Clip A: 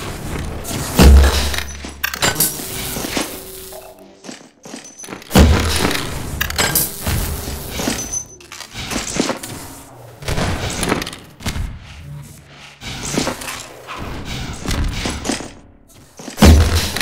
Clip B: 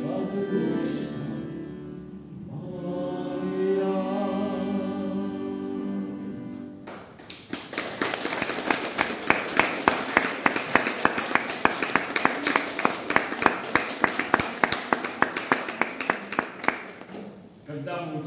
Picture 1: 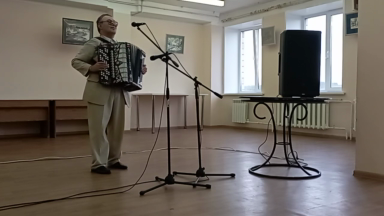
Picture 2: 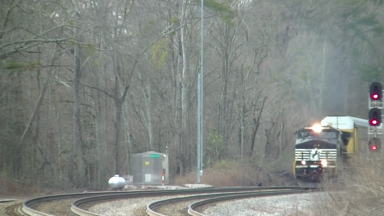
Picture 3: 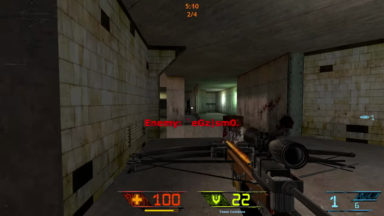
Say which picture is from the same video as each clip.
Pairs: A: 3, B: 1